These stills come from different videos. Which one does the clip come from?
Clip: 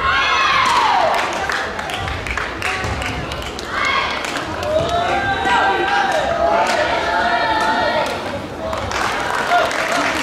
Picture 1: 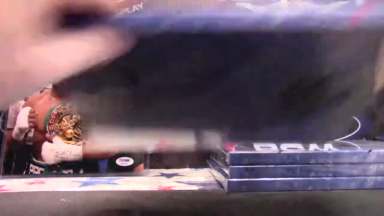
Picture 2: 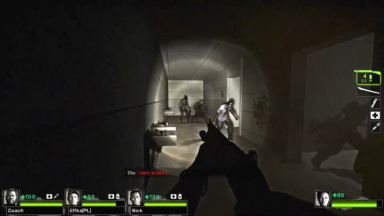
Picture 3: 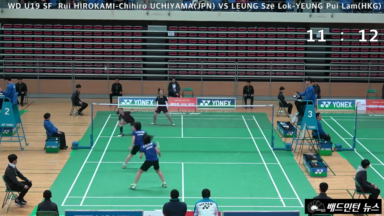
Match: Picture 3